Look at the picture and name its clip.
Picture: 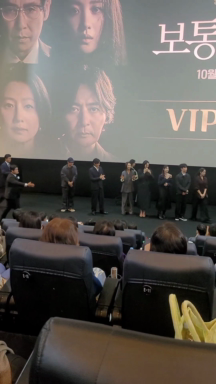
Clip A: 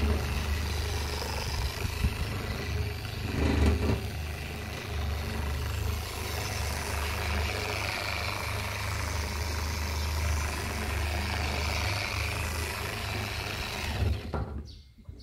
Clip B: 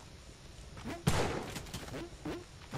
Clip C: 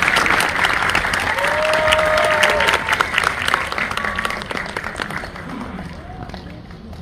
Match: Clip C